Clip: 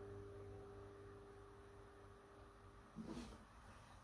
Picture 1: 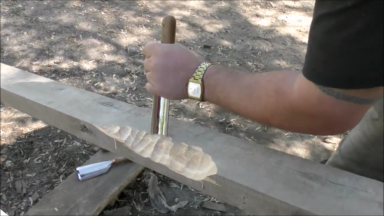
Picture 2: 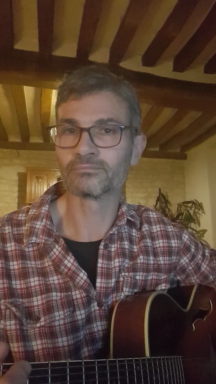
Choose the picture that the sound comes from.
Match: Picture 2